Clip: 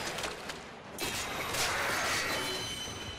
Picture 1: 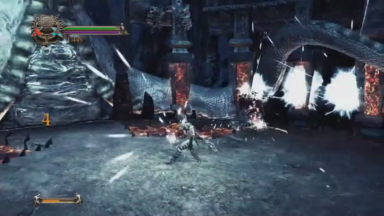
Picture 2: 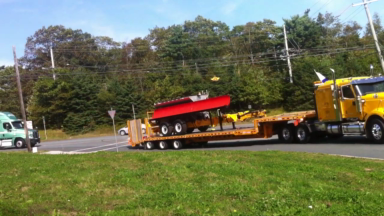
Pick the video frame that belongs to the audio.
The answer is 1